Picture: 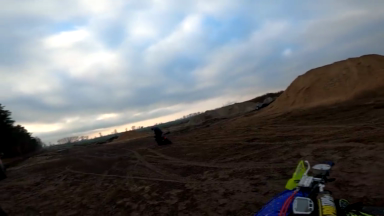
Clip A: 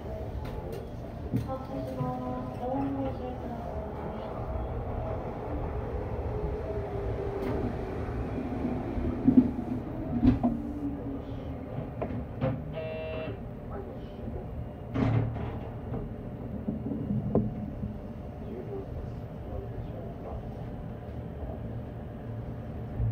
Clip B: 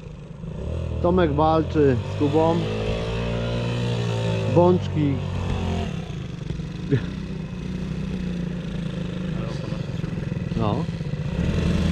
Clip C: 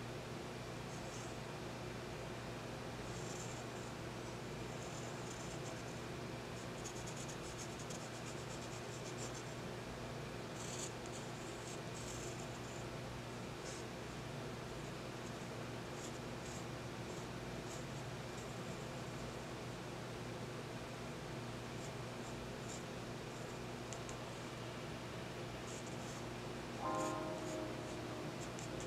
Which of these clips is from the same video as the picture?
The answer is B